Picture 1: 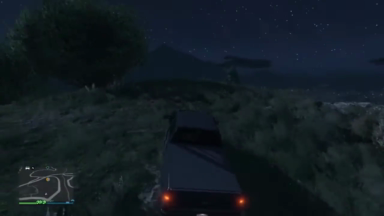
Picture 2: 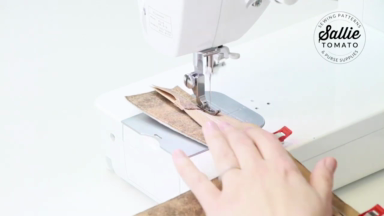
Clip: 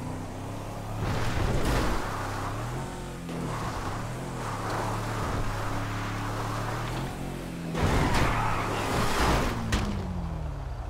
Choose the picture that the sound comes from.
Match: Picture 1